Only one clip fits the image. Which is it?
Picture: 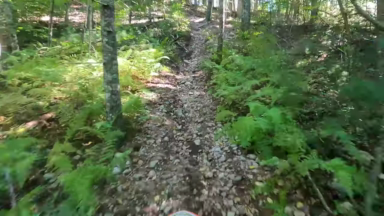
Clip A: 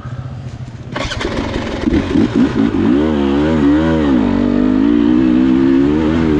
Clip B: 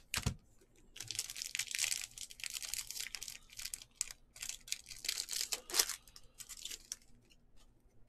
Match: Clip A